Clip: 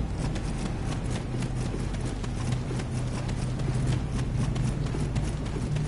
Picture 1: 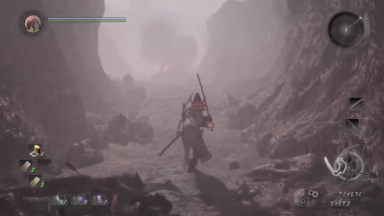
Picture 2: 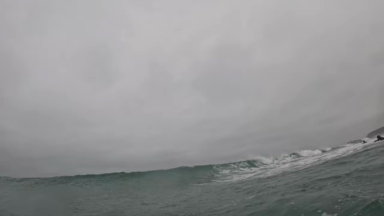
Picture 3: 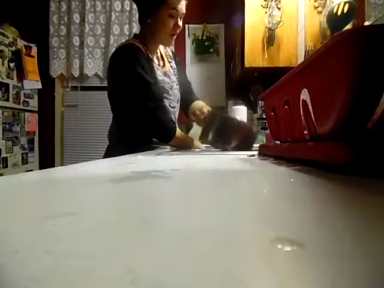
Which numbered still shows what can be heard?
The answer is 1